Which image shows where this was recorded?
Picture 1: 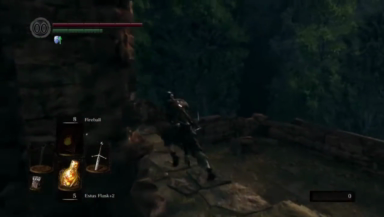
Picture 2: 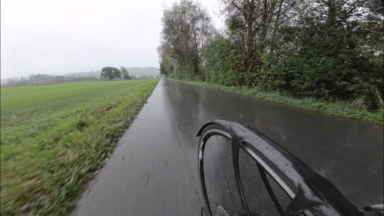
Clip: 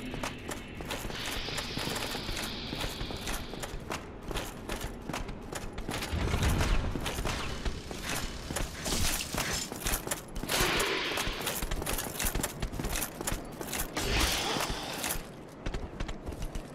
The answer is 1